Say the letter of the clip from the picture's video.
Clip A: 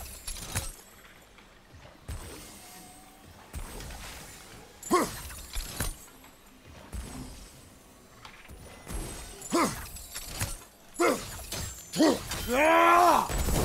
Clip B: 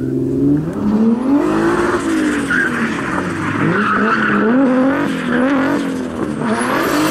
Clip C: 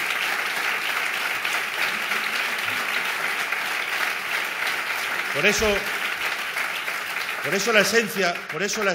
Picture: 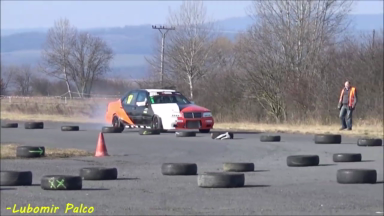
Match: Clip B